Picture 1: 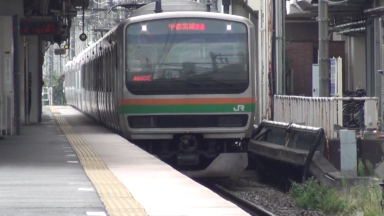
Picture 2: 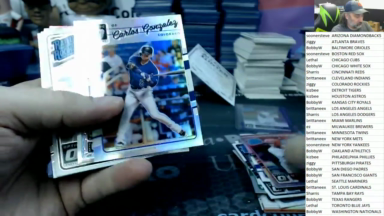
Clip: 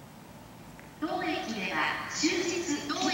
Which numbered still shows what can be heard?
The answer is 1